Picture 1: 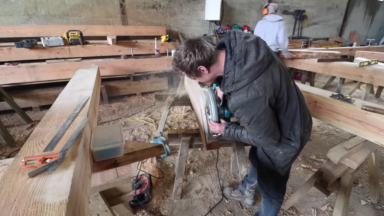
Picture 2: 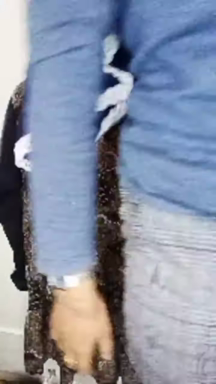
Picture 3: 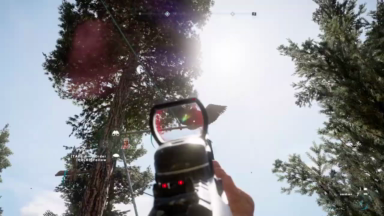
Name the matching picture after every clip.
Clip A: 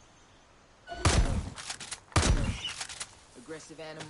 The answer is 3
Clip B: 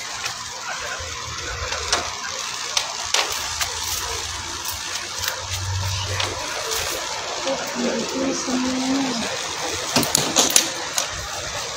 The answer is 2